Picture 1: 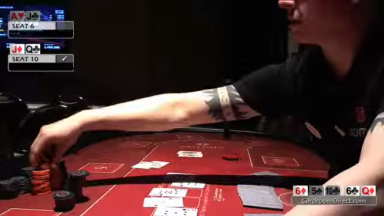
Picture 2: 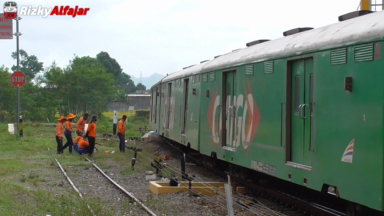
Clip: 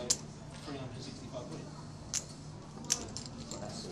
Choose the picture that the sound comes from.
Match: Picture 1